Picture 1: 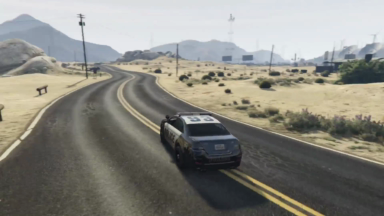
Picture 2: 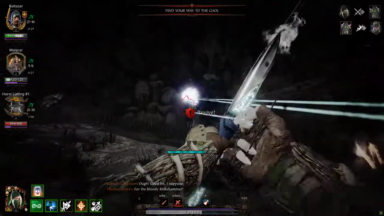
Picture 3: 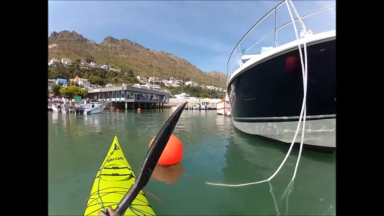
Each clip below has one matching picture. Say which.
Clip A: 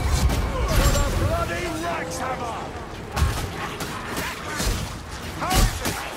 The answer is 2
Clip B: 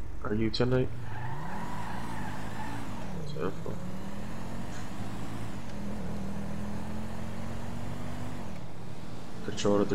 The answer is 1